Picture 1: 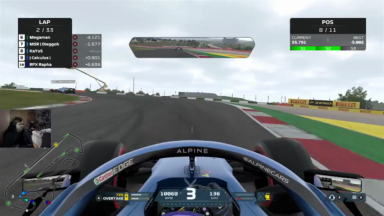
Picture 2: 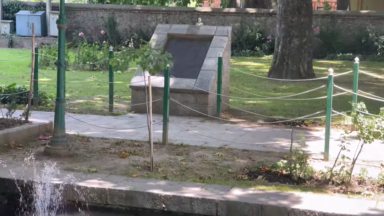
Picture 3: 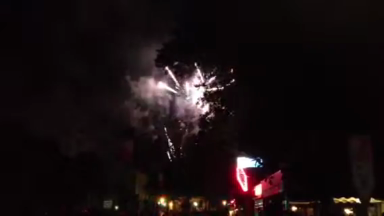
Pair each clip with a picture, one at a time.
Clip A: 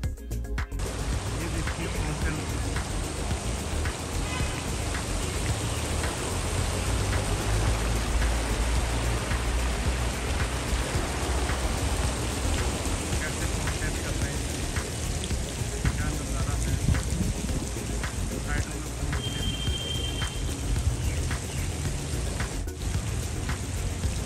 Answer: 2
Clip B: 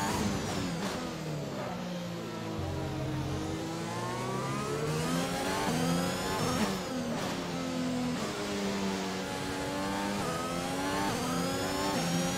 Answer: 1